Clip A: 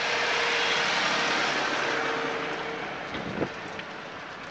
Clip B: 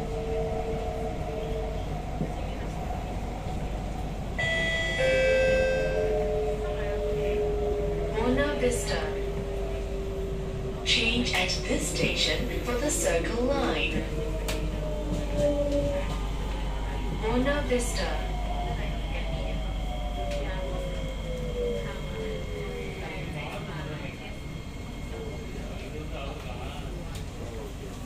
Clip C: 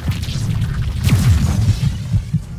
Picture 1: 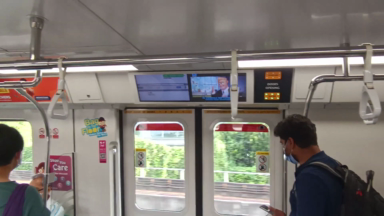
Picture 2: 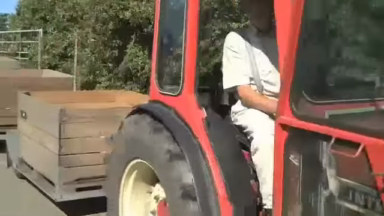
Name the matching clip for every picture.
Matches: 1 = B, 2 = A